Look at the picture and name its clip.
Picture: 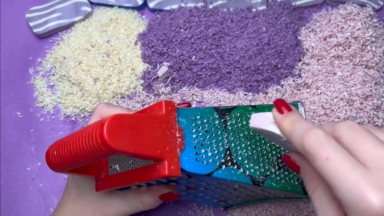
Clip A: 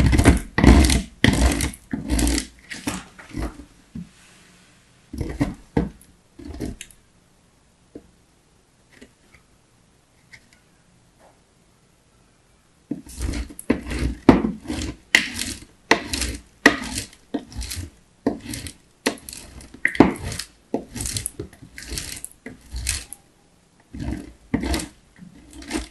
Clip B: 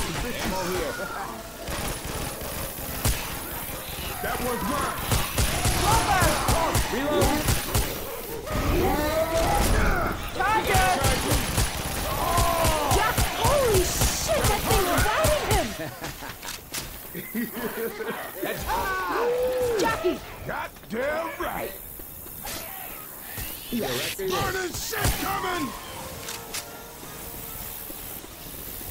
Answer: A